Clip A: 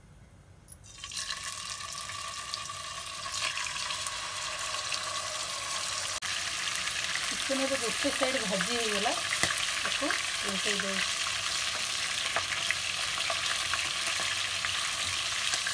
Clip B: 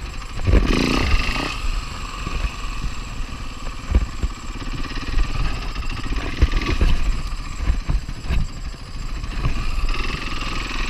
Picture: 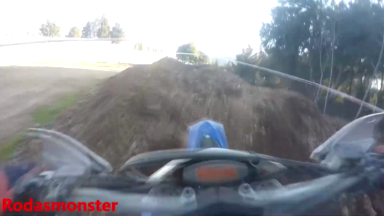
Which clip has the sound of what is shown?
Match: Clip B